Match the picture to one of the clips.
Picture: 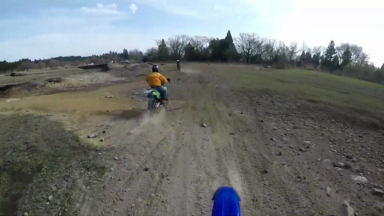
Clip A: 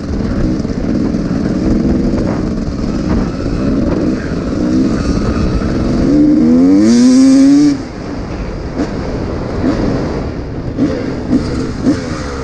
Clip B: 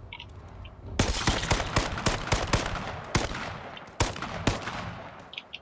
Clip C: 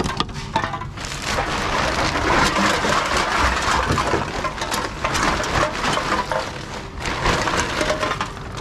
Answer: A